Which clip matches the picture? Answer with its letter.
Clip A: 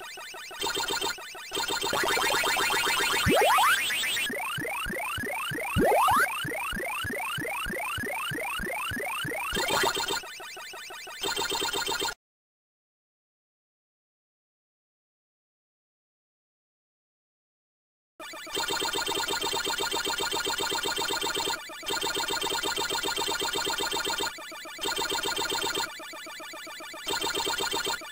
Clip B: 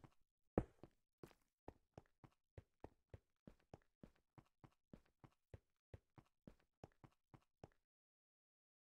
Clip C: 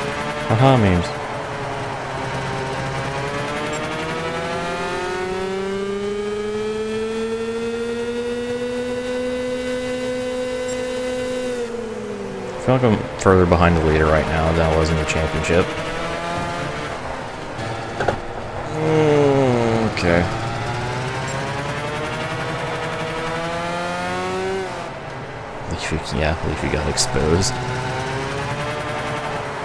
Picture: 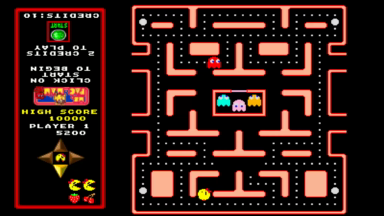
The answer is A